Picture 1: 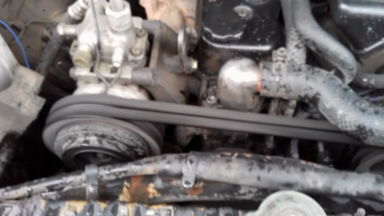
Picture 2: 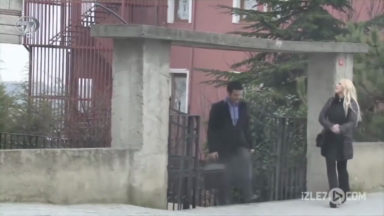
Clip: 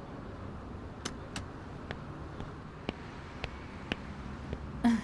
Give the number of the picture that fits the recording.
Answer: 2